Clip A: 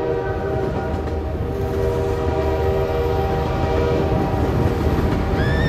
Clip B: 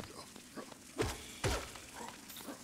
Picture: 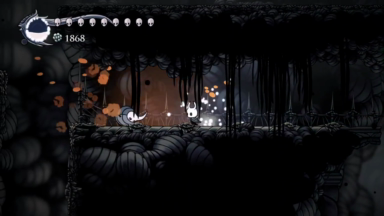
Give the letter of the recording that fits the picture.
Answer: B